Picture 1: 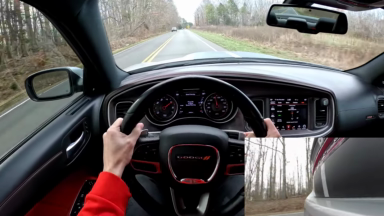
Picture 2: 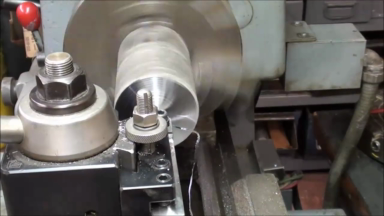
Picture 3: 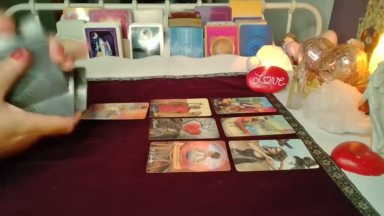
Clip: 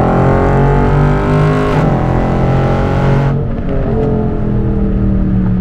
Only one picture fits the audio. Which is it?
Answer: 1